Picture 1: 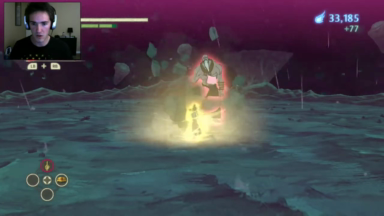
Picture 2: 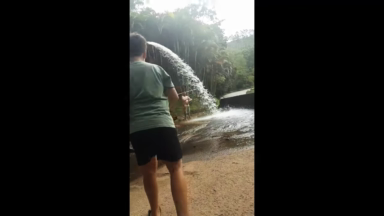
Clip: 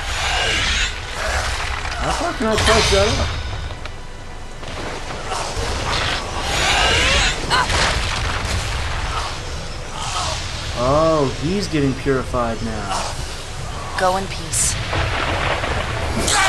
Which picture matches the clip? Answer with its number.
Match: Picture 1